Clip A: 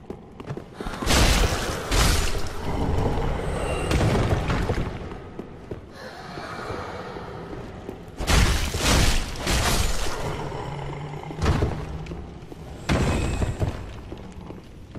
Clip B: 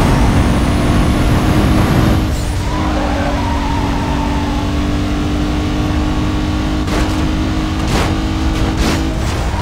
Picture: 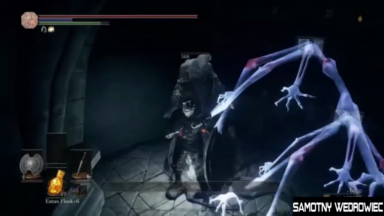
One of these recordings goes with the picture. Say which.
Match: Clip A